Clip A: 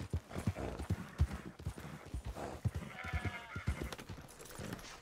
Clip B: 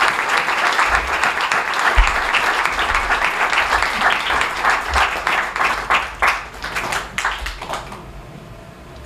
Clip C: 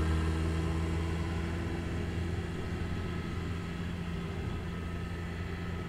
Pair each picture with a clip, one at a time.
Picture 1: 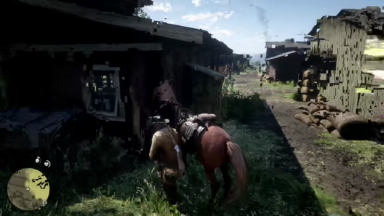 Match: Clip A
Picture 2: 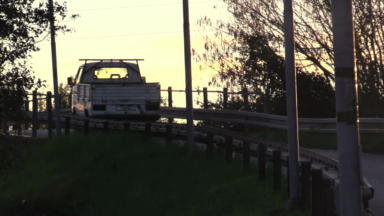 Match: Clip C